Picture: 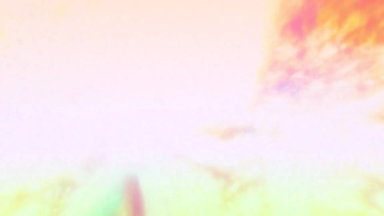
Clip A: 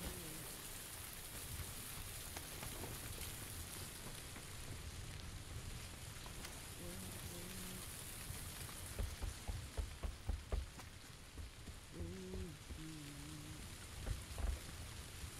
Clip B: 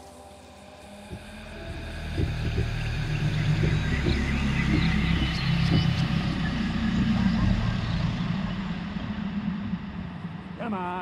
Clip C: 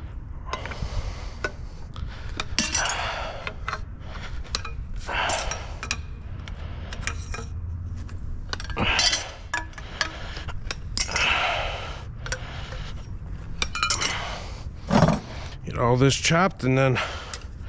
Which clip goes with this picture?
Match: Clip B